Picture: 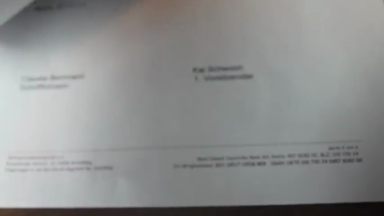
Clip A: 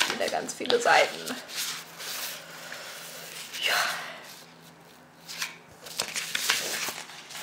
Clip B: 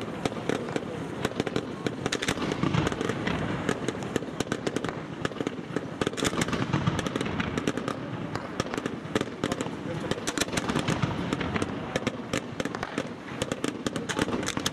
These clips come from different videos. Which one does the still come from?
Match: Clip A